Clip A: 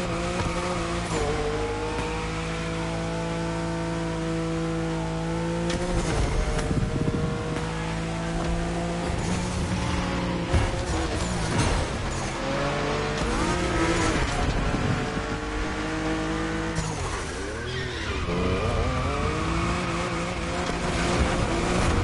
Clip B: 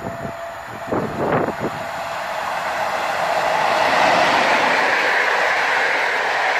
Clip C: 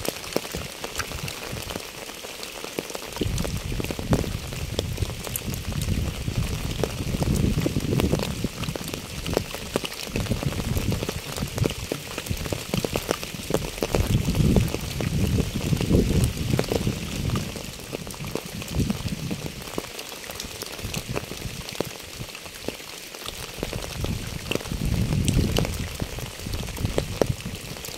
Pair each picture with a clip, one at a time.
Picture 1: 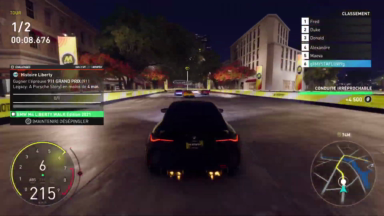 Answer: A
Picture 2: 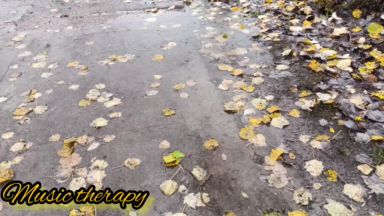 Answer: C